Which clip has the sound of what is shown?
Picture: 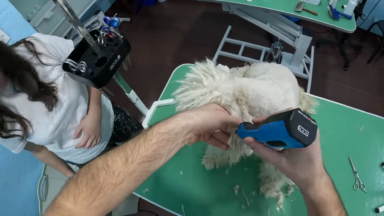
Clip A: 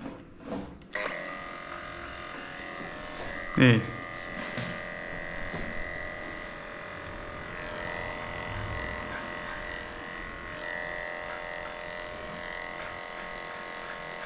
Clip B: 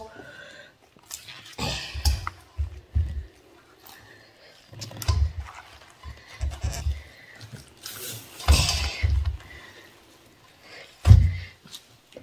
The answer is A